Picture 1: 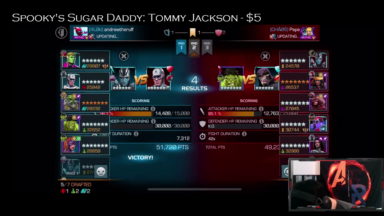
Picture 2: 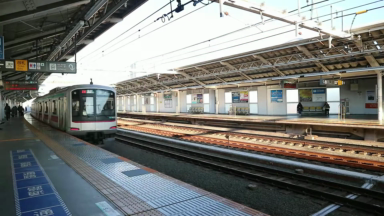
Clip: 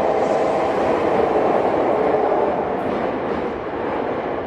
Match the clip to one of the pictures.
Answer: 2